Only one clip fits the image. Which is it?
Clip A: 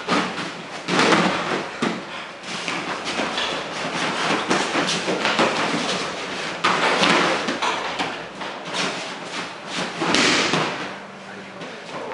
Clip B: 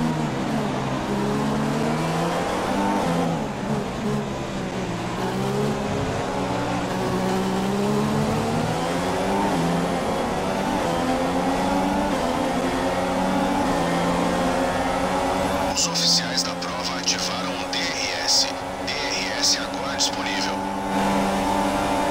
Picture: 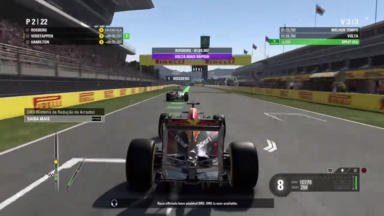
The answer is B